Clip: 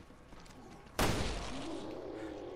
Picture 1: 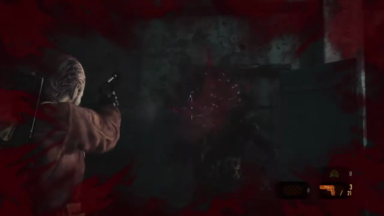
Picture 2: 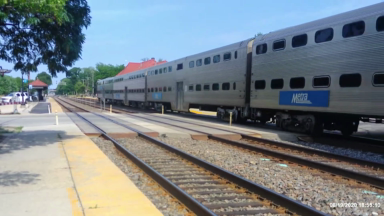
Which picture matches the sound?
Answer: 1